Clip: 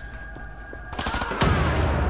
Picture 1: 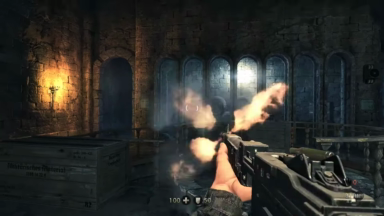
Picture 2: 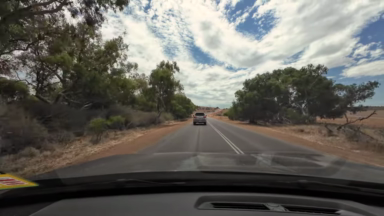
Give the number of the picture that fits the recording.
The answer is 1